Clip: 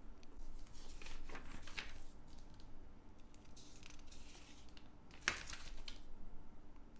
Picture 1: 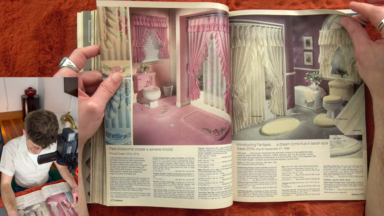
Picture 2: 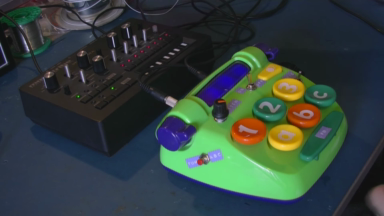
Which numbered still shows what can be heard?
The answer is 1